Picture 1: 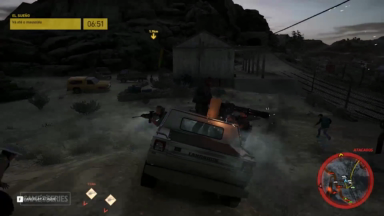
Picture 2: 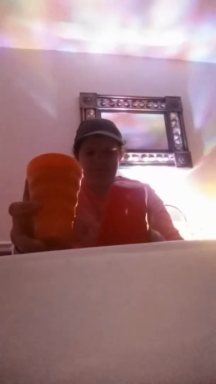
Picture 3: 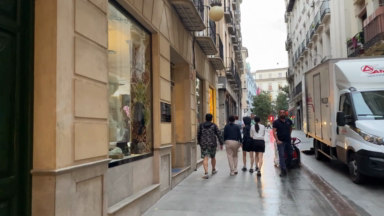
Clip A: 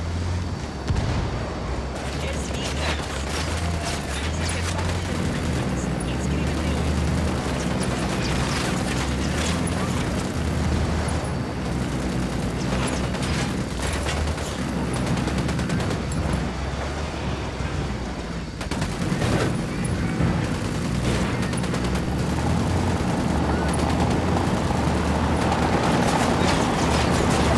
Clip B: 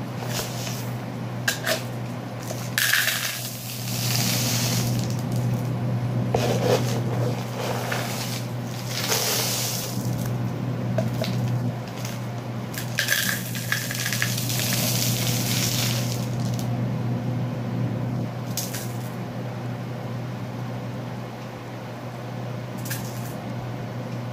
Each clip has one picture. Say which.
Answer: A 1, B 2